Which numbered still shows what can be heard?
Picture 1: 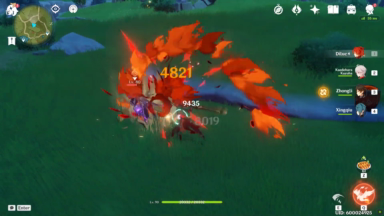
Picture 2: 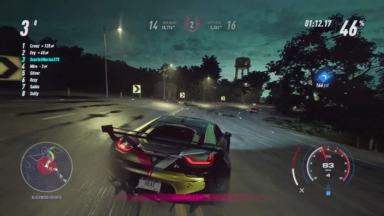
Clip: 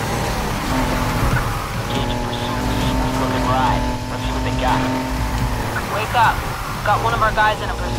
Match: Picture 2